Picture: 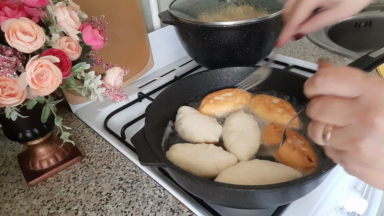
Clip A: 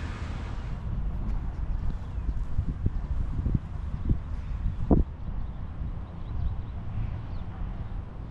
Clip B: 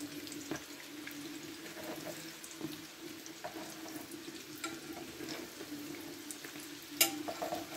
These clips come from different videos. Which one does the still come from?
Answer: B